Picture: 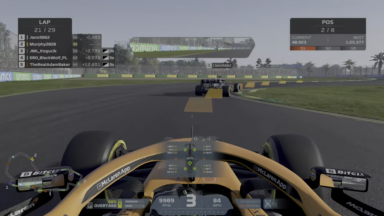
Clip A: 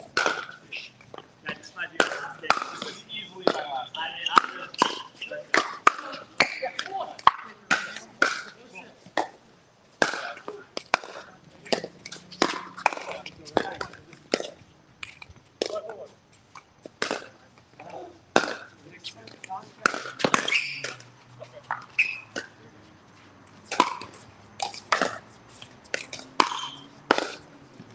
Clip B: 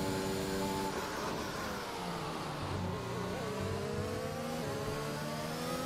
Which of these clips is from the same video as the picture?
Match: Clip B